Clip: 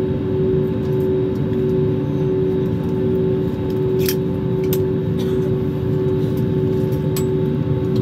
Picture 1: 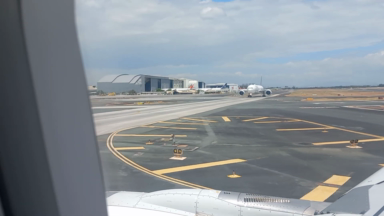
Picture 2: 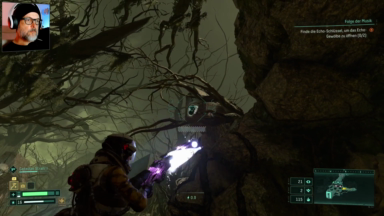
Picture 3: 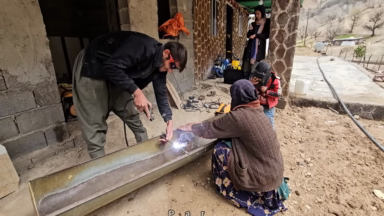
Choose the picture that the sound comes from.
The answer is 1